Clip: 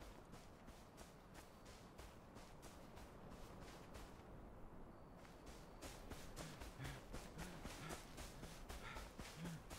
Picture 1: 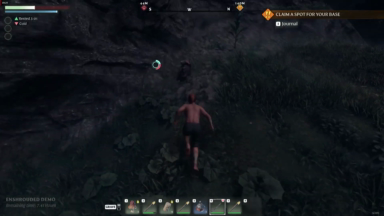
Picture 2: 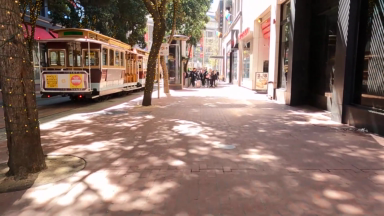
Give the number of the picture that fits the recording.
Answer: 1